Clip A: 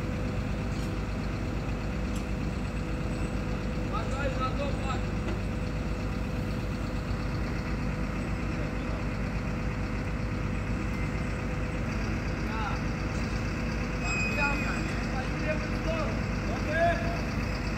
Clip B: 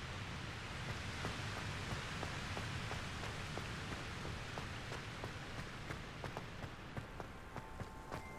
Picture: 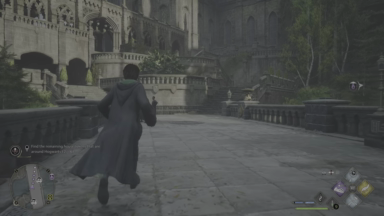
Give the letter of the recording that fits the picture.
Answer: B